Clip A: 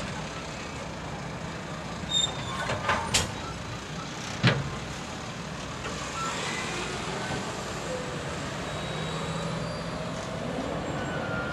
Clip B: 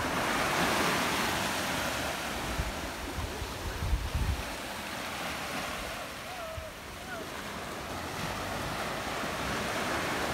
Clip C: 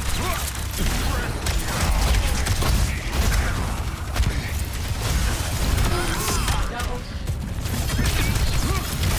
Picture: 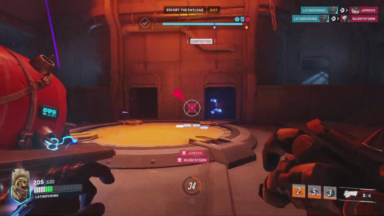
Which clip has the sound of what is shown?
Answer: C